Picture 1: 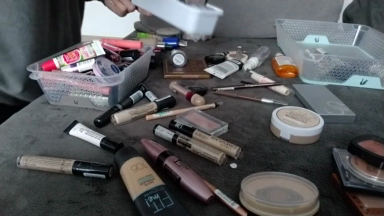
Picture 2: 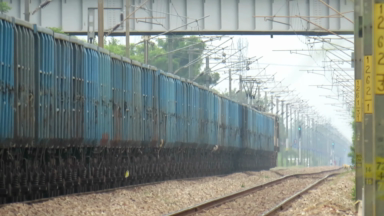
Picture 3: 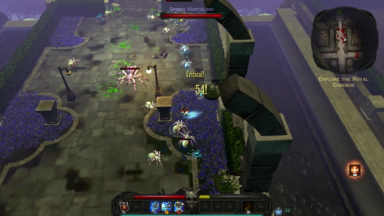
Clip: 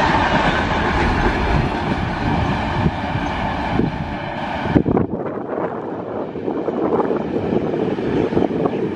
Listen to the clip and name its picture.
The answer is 2